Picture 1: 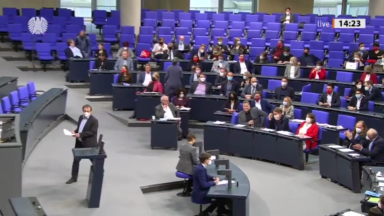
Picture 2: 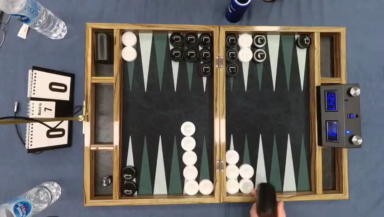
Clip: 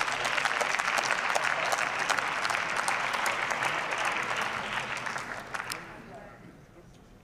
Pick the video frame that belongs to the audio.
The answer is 1